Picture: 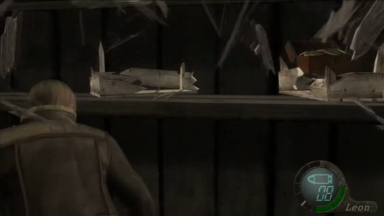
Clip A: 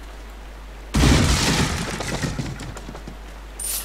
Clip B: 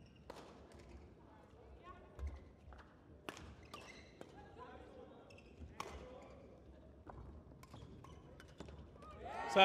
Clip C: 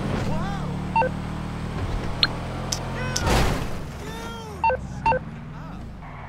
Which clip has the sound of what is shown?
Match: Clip A